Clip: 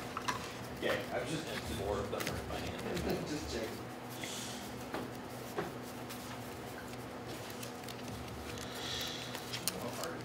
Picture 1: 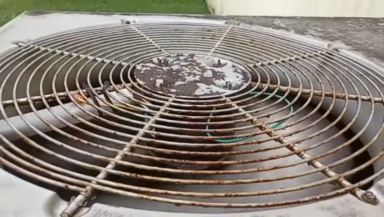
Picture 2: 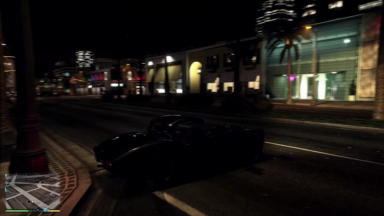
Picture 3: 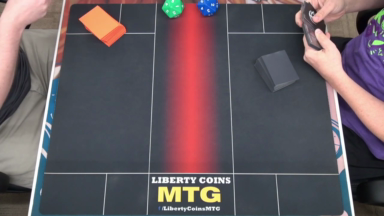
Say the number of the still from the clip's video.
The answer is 3